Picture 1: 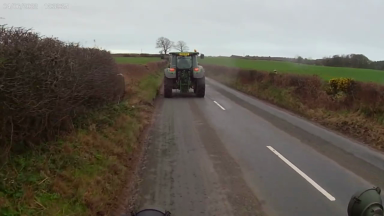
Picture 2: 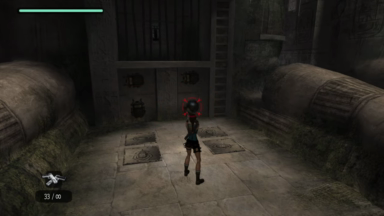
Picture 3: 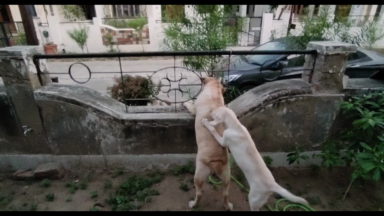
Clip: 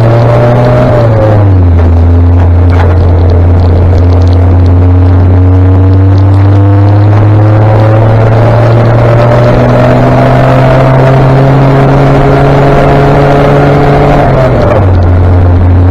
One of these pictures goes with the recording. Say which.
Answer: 1